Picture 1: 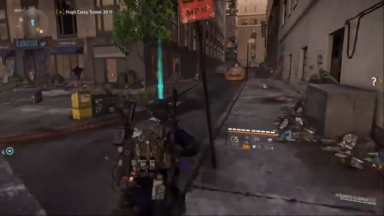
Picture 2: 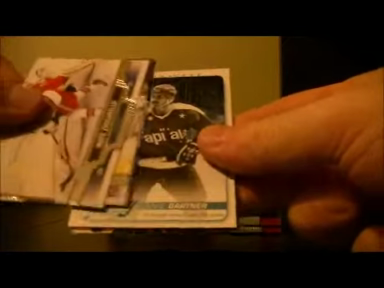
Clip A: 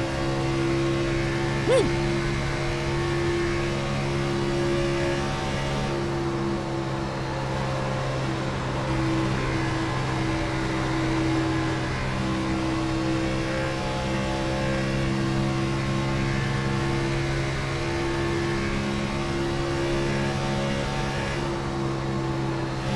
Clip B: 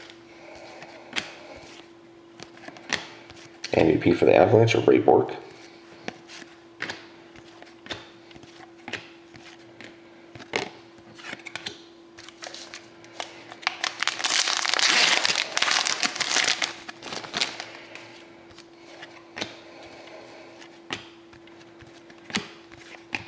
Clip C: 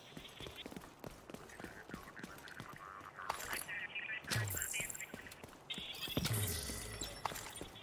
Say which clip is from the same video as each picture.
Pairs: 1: C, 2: B